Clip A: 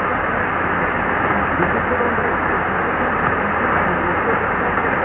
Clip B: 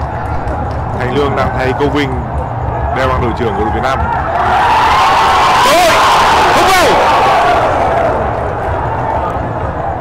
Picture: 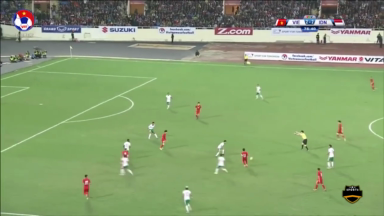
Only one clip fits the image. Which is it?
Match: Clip B